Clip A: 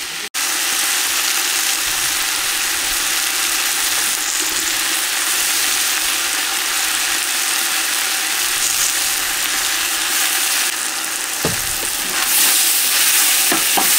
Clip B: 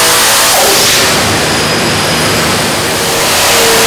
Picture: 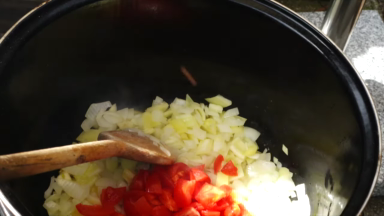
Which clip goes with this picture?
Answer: A